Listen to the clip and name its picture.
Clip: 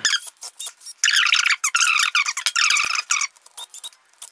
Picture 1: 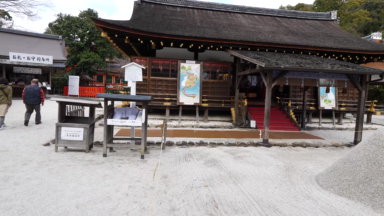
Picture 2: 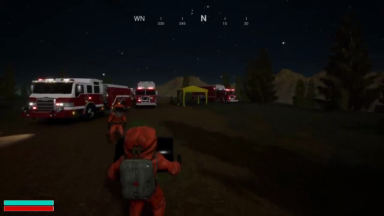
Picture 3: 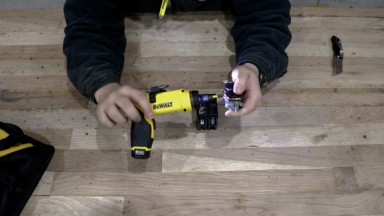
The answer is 3